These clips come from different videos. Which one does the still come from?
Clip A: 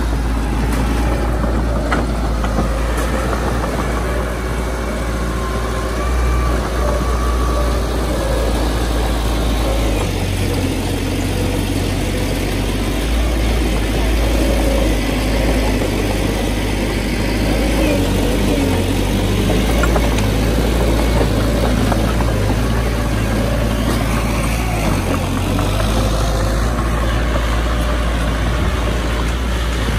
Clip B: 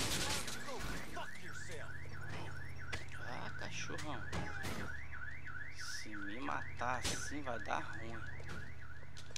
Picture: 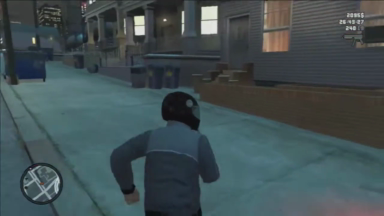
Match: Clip B